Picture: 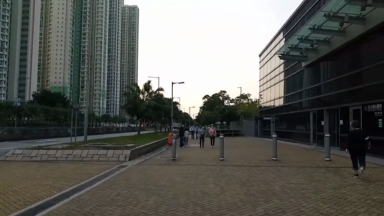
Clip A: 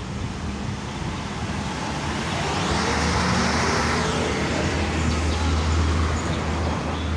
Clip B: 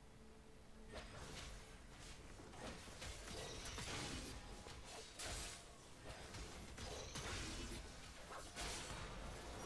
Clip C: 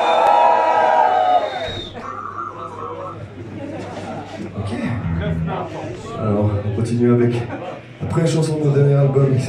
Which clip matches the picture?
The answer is A